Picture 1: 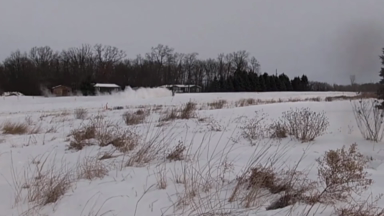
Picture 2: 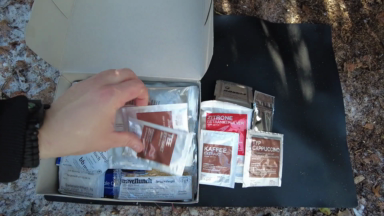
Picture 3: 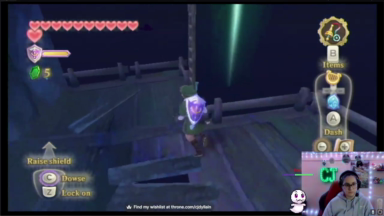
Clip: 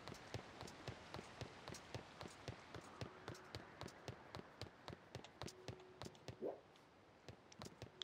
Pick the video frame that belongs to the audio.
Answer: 3